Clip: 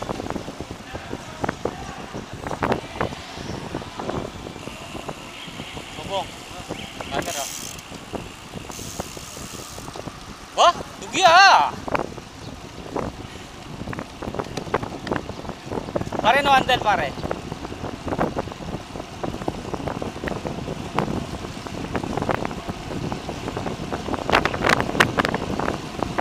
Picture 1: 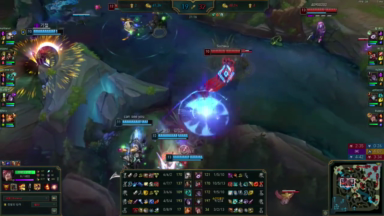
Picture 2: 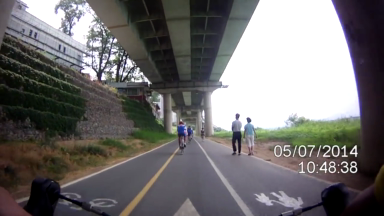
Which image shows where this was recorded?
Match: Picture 2